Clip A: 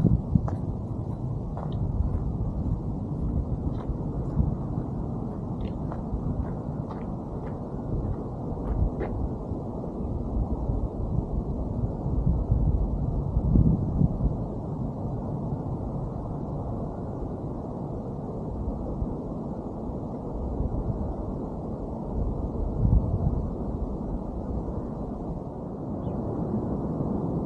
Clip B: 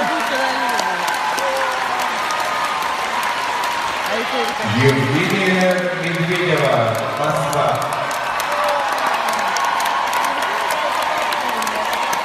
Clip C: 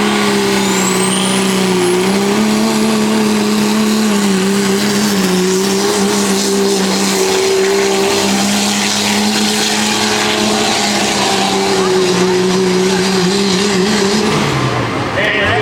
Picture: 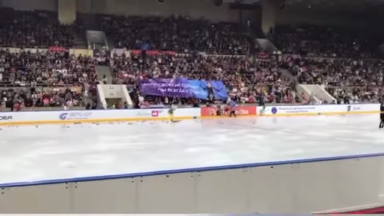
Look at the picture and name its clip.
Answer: B